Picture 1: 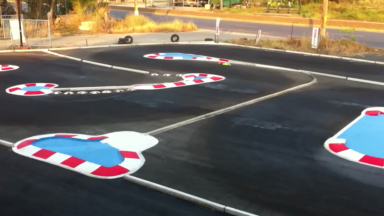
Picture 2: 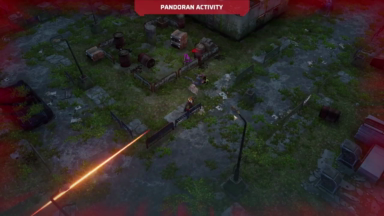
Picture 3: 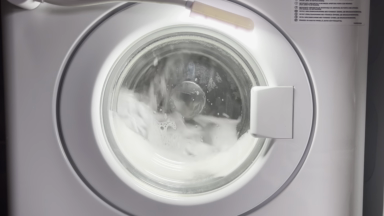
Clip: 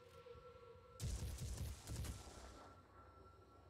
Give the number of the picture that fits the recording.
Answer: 2